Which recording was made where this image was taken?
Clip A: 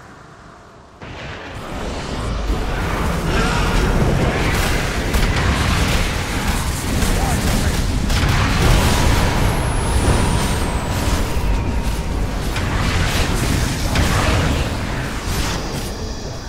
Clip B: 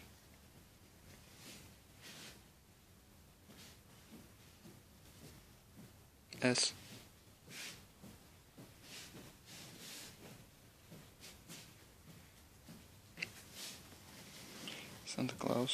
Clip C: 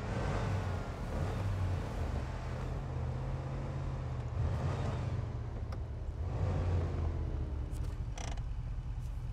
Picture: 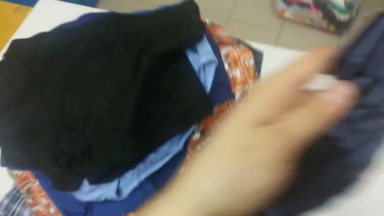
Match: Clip B